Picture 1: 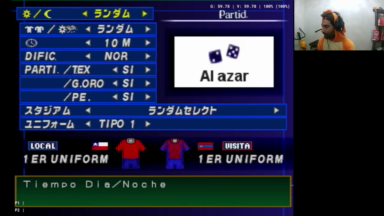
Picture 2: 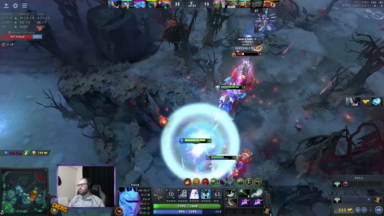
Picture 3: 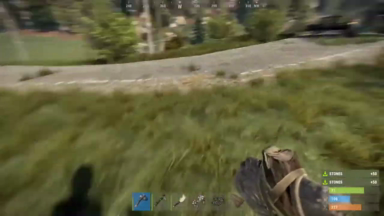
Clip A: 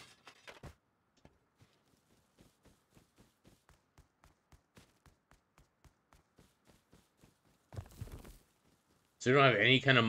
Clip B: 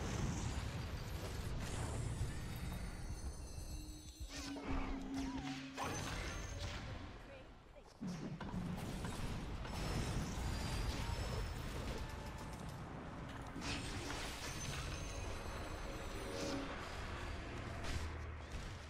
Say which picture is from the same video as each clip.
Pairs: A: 3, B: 2